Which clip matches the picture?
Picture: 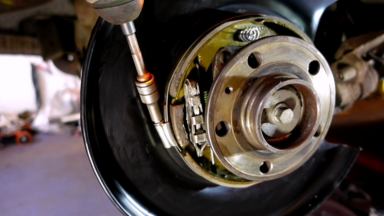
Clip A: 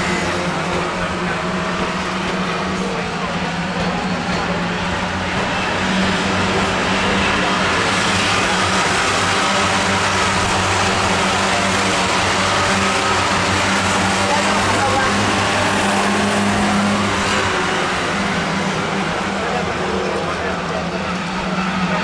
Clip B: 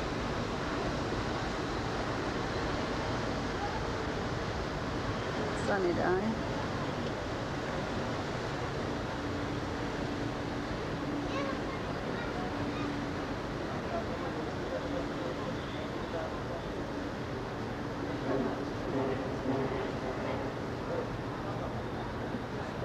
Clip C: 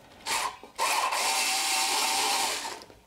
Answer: C